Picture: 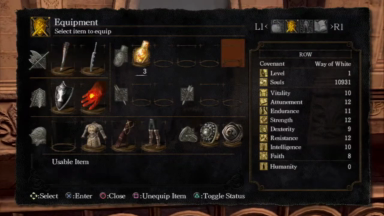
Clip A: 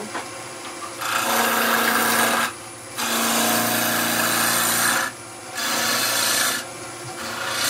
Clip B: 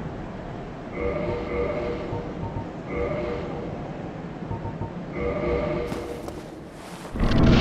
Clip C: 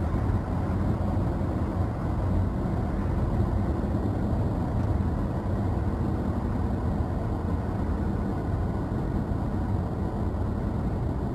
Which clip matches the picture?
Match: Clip B